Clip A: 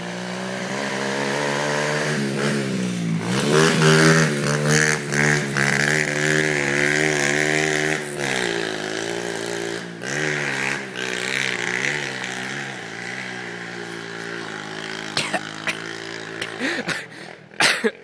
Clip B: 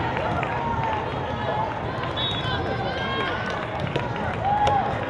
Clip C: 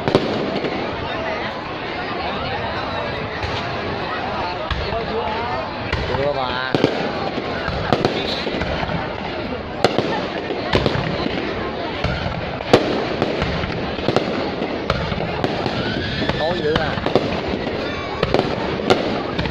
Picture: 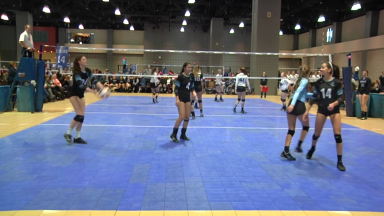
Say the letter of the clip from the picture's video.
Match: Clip B